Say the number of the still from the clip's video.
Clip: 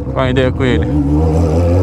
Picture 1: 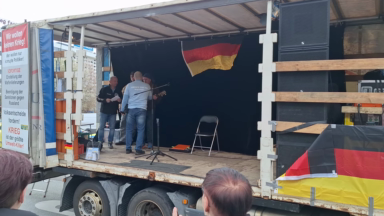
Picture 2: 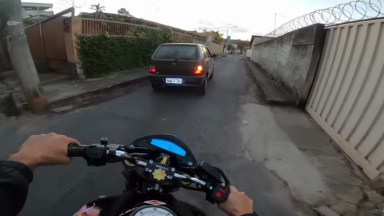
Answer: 2